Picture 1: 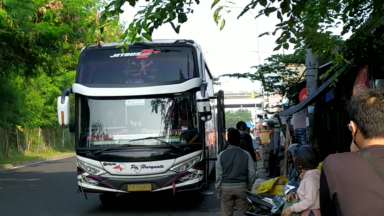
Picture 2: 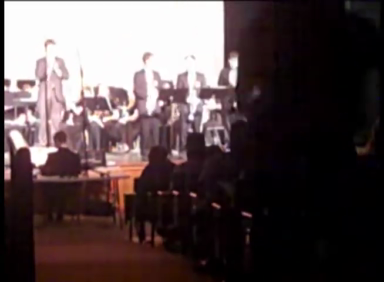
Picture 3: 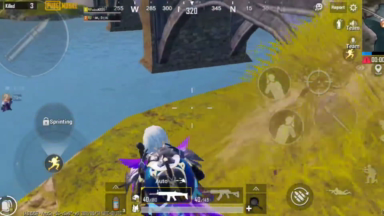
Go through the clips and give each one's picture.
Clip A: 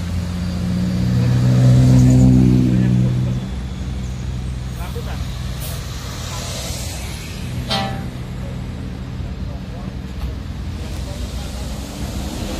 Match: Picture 1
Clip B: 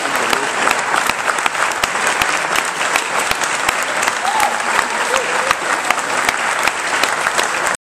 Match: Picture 2